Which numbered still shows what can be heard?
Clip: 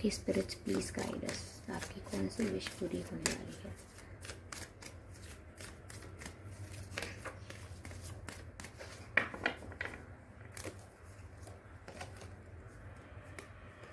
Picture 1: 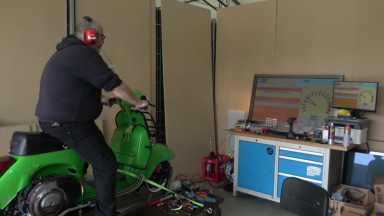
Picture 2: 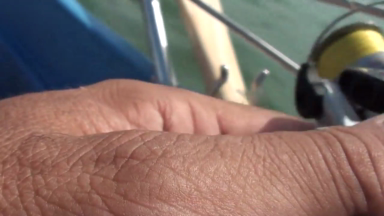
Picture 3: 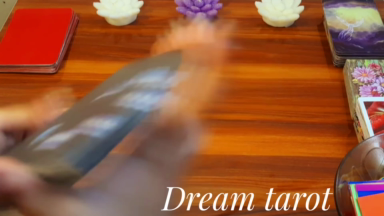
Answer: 3